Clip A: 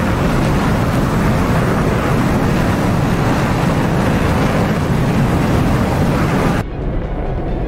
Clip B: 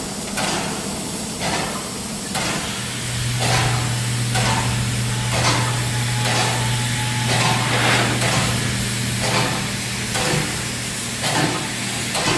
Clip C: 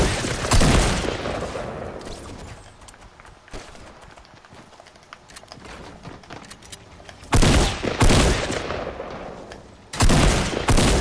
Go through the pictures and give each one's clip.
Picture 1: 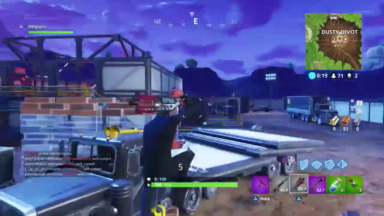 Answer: C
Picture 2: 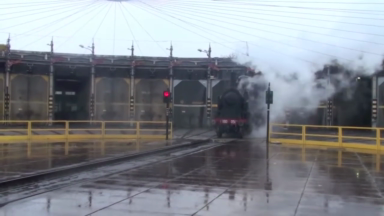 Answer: B